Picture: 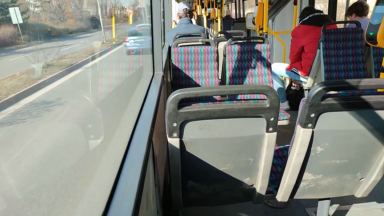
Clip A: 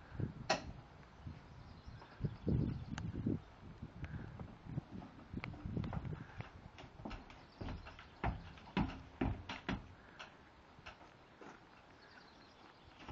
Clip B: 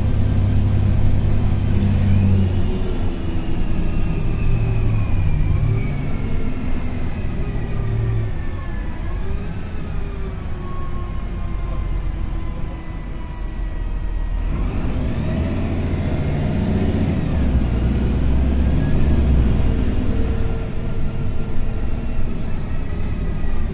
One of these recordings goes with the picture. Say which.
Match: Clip B